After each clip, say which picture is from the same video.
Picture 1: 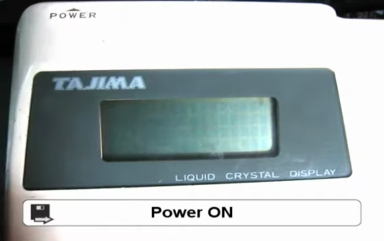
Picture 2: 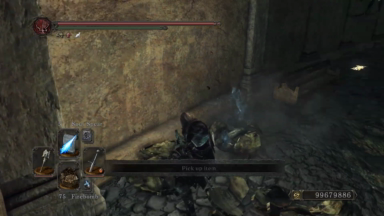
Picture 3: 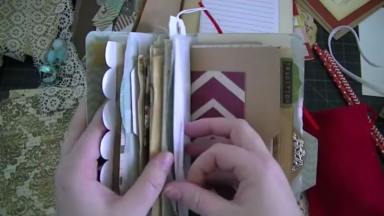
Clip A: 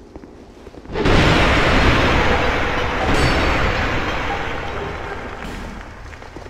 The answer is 2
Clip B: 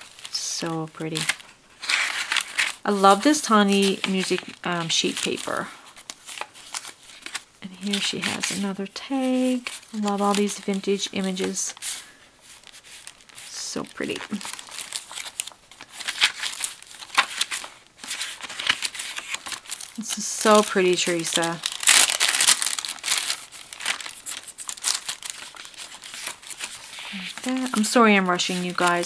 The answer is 3